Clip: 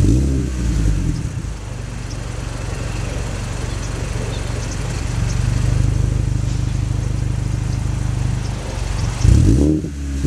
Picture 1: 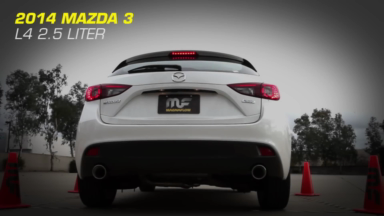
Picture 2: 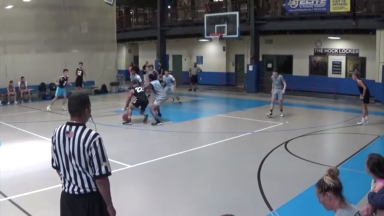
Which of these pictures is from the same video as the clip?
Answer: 1